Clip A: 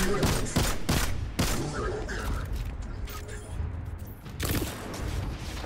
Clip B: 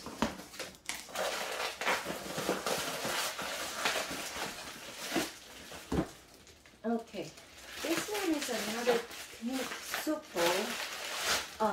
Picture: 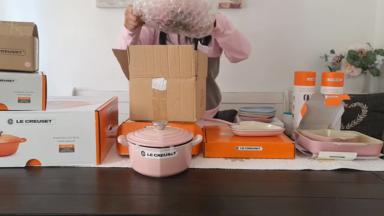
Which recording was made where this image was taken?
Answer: B